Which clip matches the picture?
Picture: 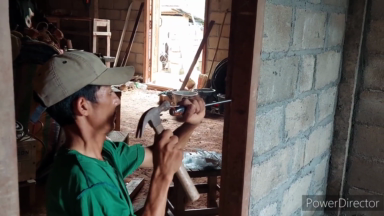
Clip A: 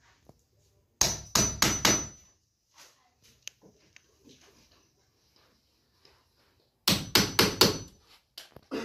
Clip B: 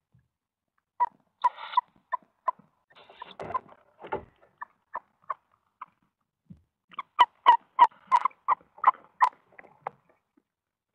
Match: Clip A